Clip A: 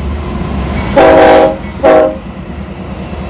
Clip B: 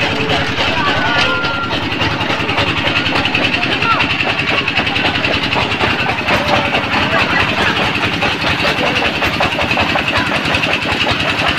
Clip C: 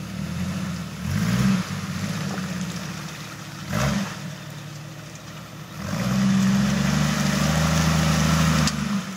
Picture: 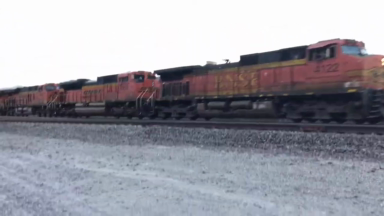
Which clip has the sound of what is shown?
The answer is A